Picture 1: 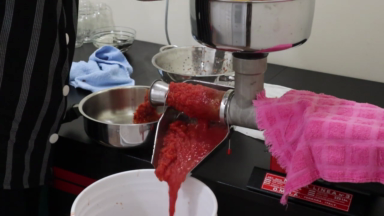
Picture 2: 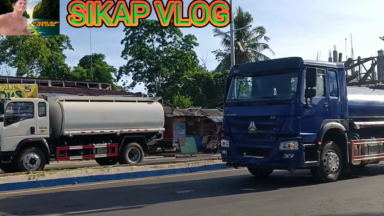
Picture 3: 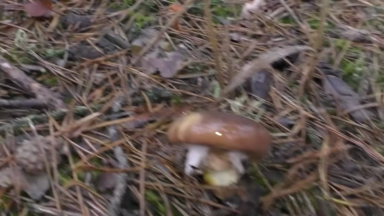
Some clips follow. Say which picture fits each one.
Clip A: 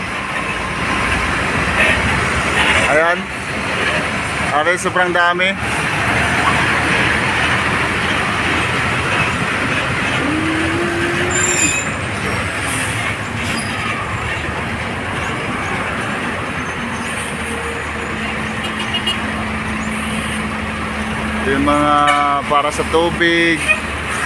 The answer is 2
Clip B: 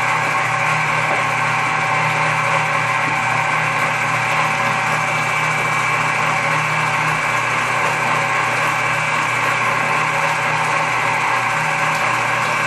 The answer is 1